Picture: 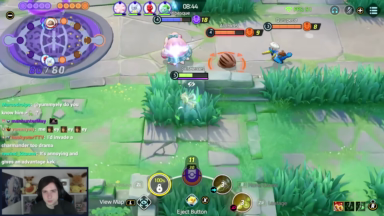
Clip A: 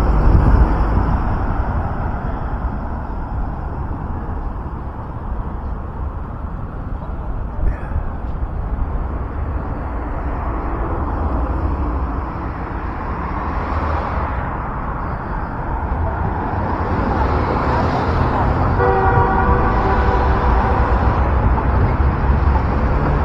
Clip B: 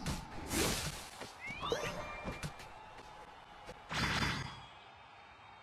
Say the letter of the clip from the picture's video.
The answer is B